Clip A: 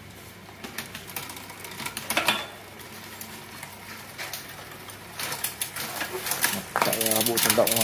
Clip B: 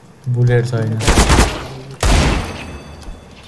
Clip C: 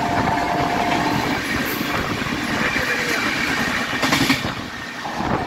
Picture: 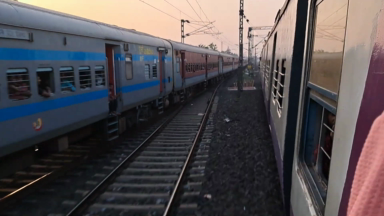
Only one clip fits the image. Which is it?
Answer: C